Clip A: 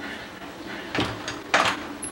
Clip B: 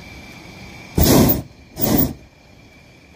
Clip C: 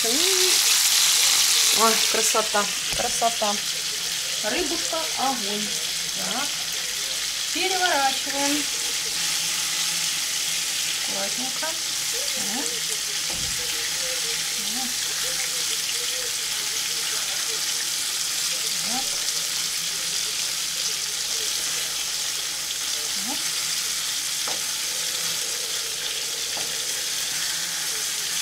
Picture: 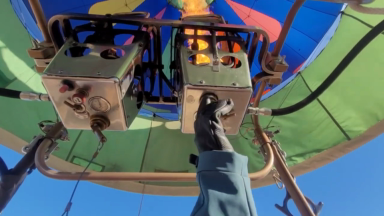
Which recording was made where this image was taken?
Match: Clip B